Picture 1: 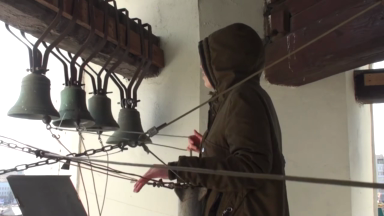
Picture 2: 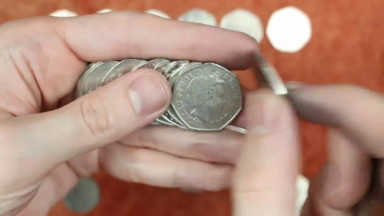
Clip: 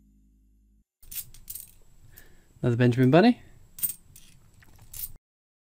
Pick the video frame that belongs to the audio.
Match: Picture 2